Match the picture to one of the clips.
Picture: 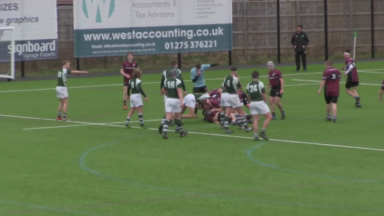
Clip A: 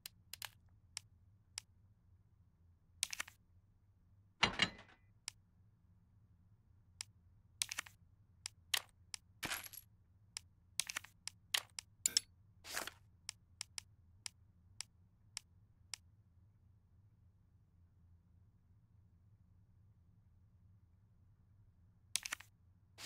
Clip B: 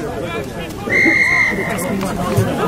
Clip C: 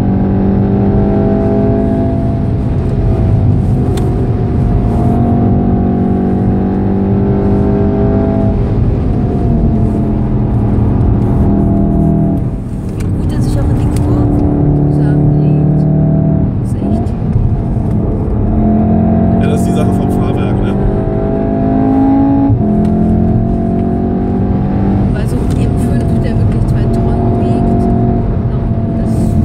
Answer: B